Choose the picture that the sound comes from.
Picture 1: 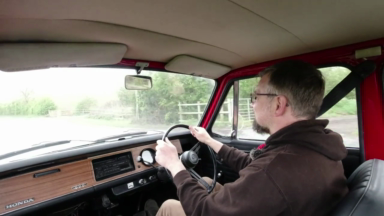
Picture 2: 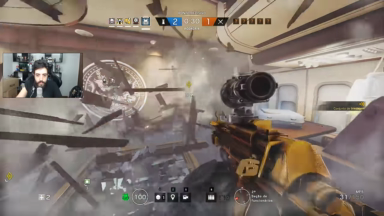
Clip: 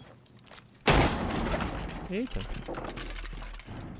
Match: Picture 2